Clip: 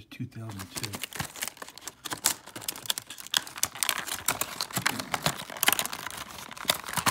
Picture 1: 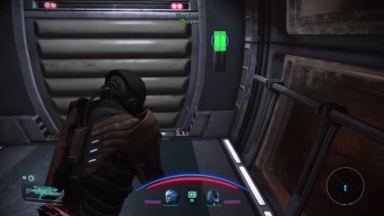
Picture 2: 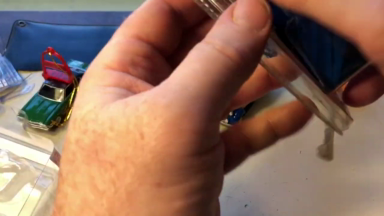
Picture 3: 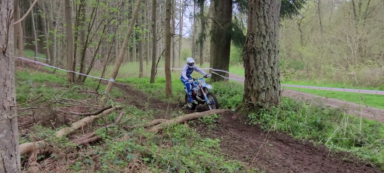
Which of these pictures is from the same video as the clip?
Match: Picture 2